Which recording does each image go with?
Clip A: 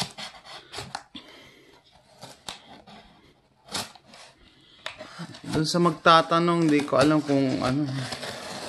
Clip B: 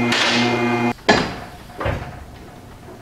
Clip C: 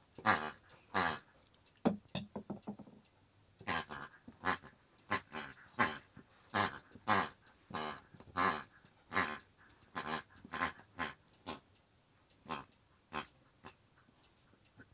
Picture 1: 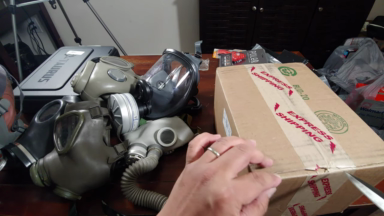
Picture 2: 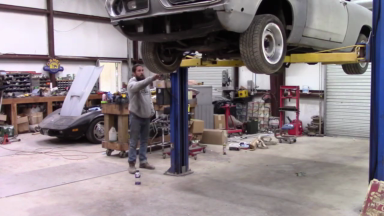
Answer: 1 A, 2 B